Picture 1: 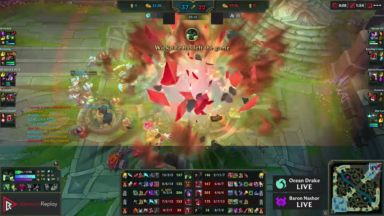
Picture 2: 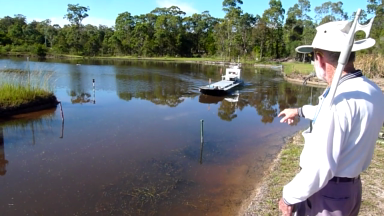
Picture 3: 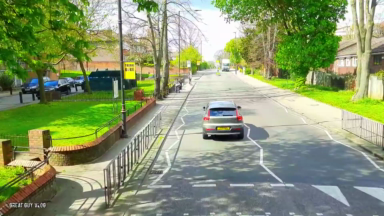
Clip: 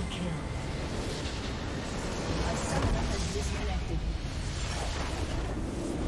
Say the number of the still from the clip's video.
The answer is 1